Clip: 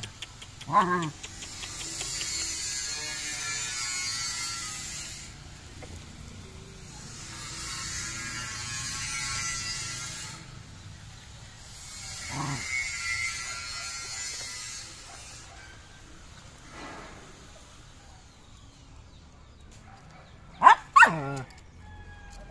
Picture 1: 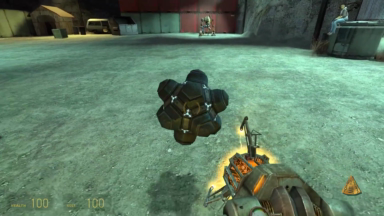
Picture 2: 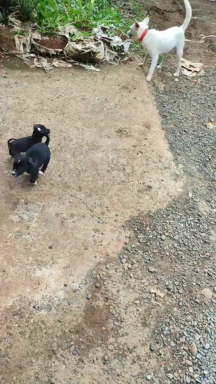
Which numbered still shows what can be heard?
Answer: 2